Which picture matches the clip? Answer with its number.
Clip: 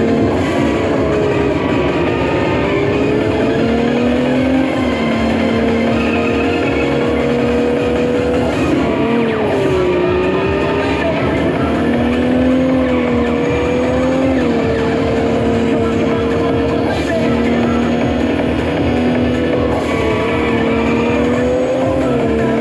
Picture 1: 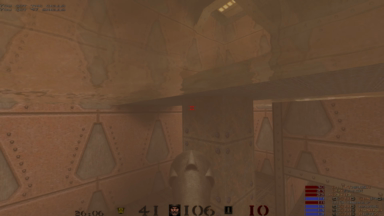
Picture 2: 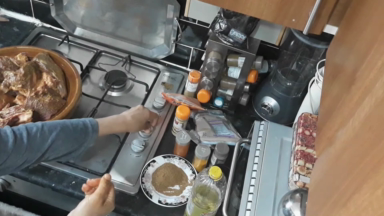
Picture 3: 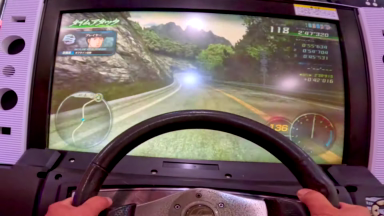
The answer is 3